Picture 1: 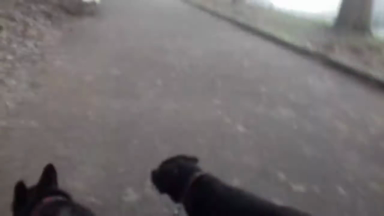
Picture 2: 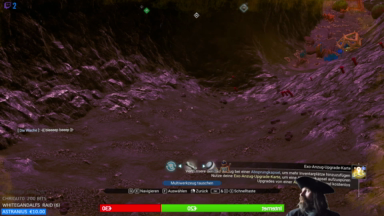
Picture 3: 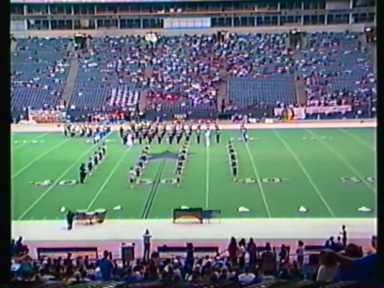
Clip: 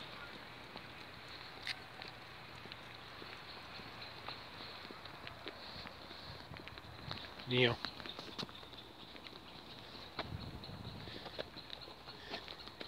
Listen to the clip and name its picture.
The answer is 1